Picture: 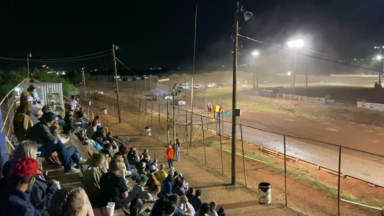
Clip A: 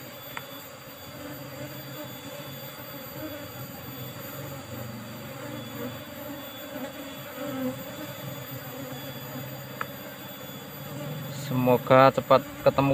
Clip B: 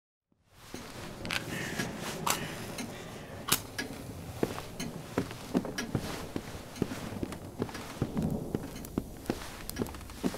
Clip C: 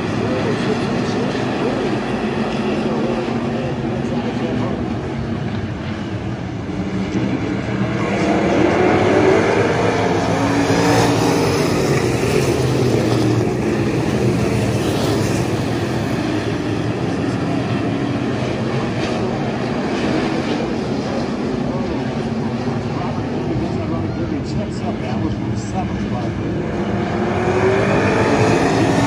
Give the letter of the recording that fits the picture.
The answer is C